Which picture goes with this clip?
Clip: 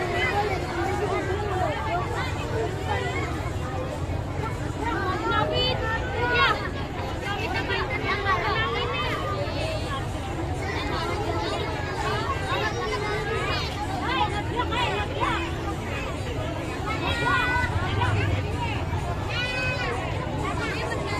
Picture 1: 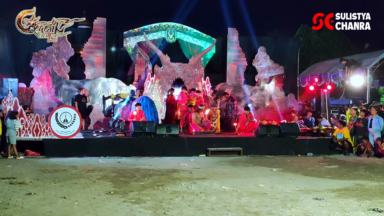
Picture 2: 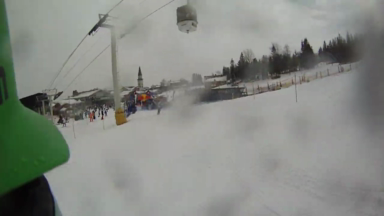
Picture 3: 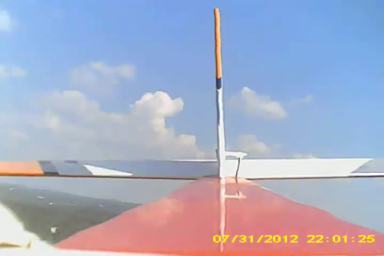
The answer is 1